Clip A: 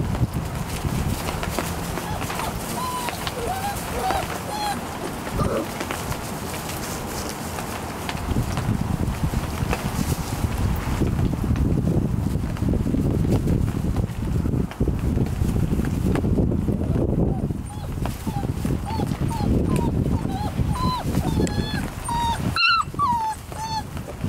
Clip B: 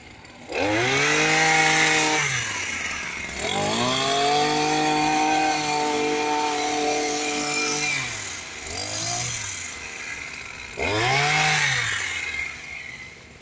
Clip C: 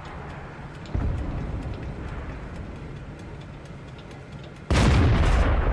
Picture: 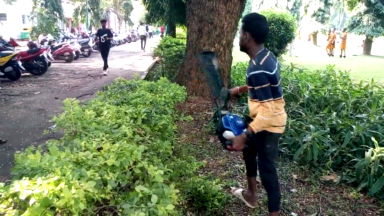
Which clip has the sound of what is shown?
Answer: B